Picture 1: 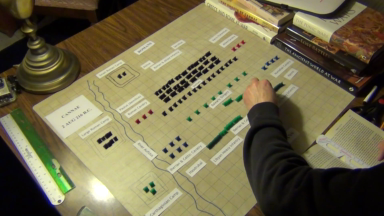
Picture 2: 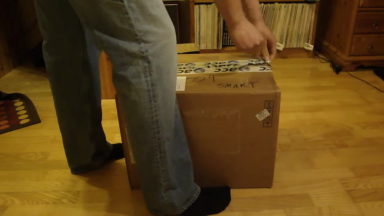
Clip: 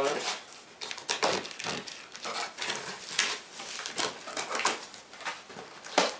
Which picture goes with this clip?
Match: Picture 2